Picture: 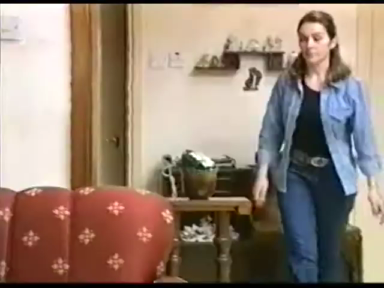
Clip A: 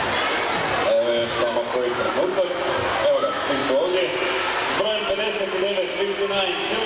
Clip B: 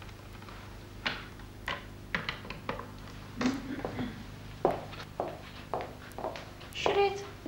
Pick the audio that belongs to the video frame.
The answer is B